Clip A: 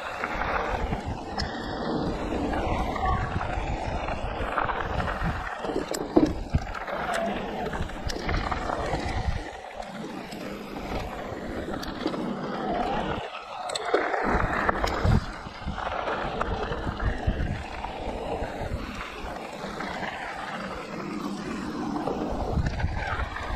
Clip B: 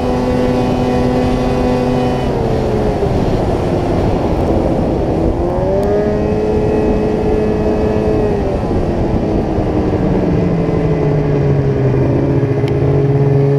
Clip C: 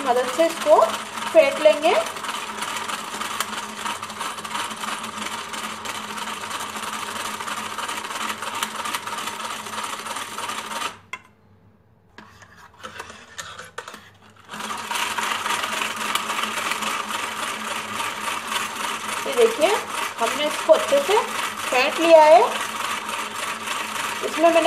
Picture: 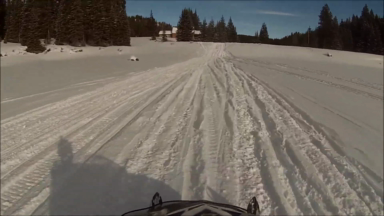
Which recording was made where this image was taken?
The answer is B